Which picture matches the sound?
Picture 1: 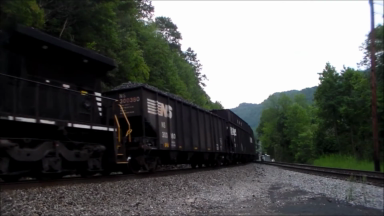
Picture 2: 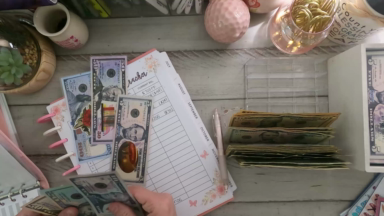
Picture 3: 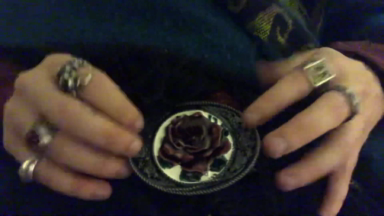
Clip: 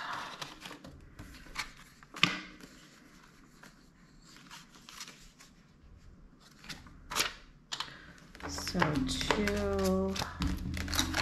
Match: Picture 2